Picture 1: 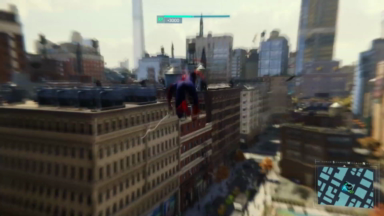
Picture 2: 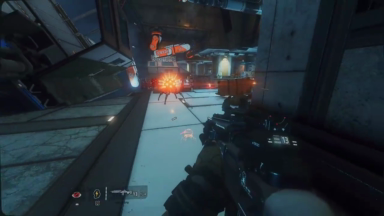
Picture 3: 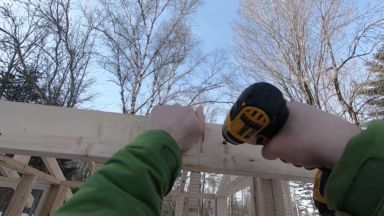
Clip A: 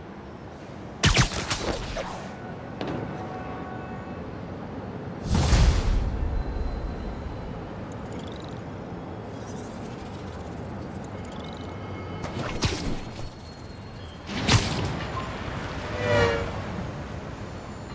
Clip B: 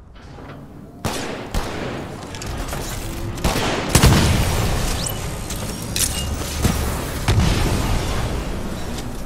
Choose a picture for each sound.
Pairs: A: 1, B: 2